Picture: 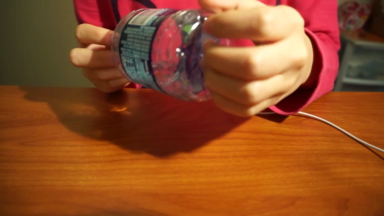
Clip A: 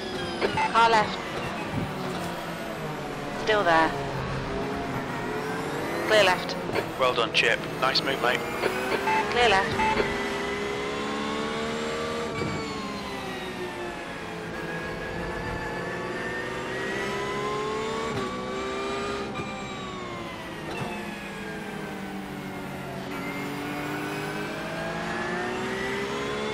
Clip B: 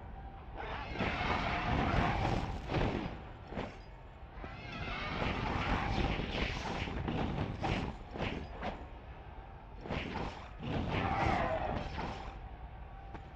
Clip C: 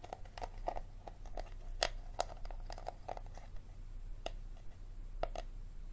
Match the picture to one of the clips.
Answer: C